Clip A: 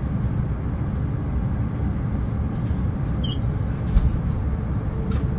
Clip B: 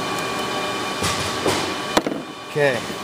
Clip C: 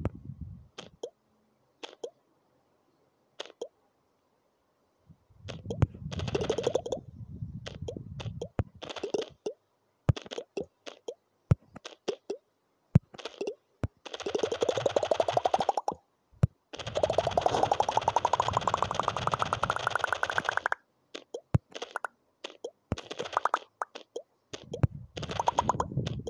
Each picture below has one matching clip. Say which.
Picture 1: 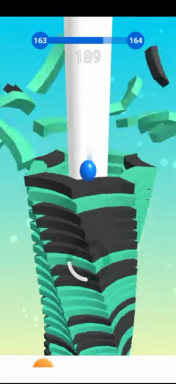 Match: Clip C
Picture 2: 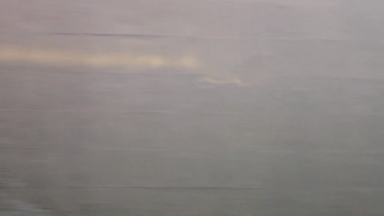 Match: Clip A